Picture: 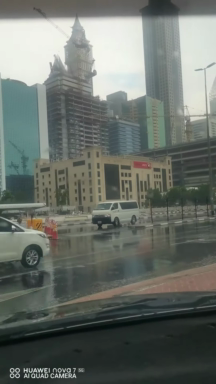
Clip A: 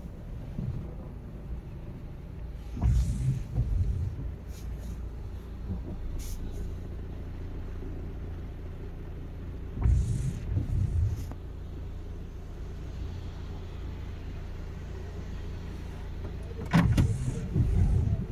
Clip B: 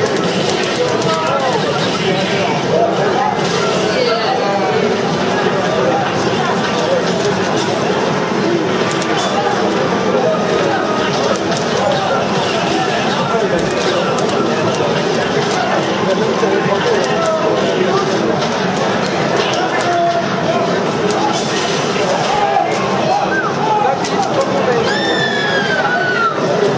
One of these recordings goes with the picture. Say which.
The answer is A